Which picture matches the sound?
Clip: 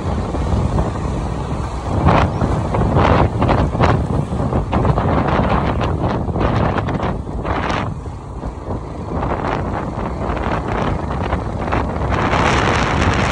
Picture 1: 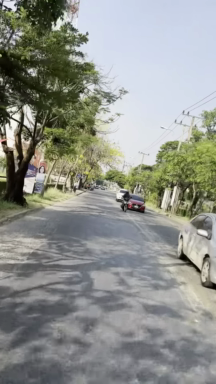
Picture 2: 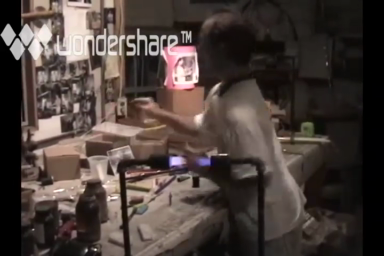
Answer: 1